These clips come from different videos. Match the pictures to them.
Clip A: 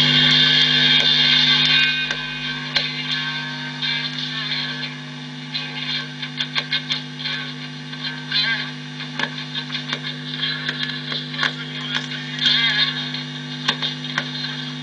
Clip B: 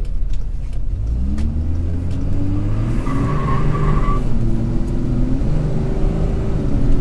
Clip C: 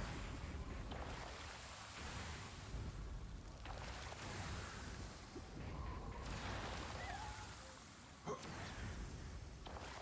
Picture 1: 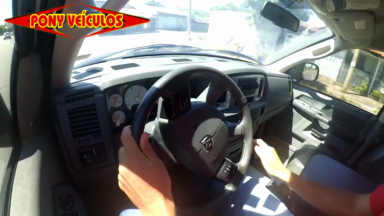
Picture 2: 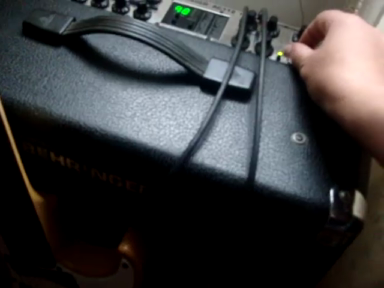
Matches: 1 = B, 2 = A